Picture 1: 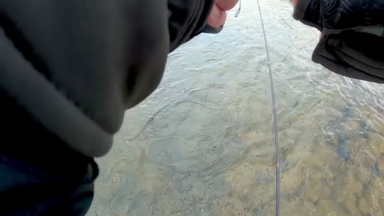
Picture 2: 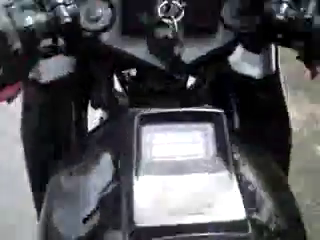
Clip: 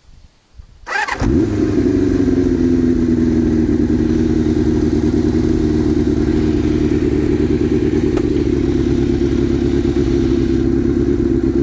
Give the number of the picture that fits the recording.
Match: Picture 2